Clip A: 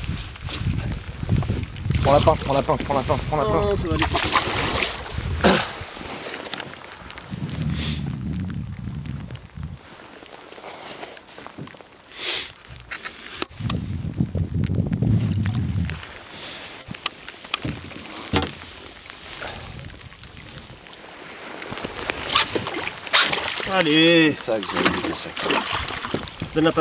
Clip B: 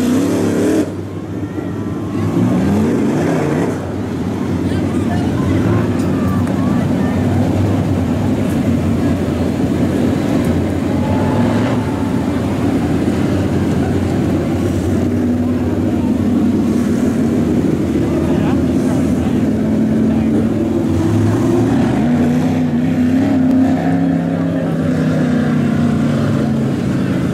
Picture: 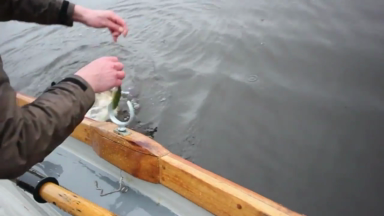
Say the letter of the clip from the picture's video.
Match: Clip A